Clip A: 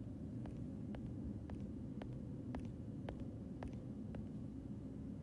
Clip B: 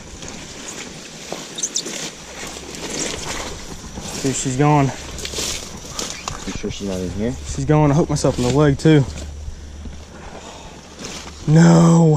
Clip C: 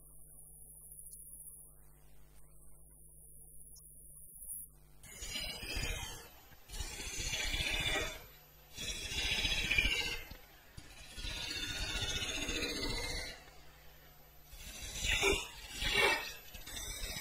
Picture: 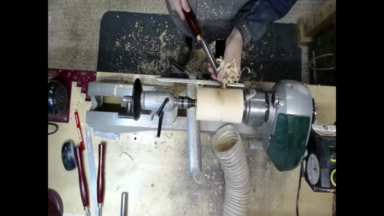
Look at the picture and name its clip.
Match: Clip C